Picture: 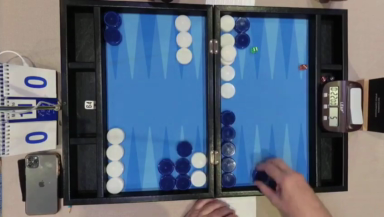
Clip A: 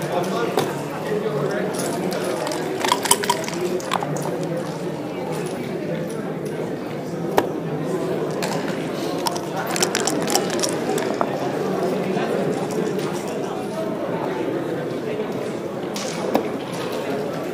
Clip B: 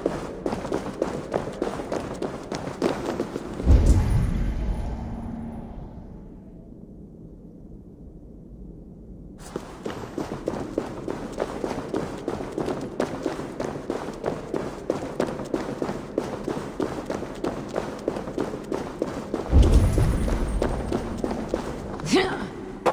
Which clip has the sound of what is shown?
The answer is A